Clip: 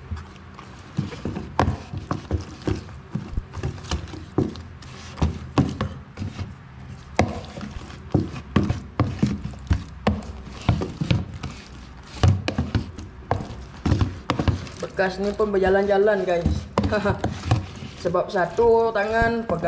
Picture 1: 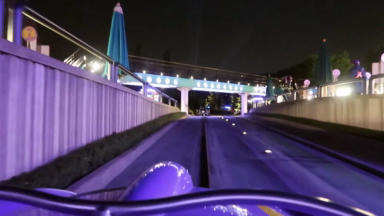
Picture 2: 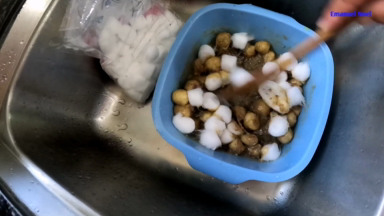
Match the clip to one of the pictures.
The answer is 2